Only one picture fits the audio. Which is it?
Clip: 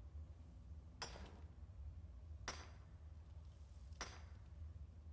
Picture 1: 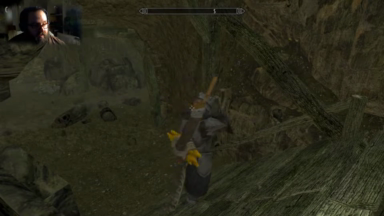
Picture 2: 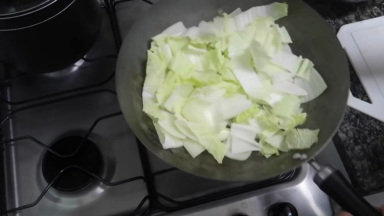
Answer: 1